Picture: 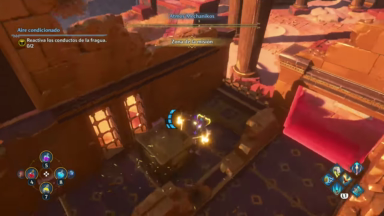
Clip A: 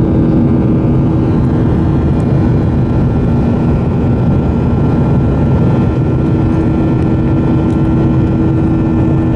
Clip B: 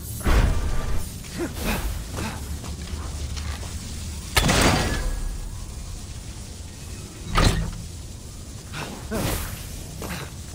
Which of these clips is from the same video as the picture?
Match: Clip B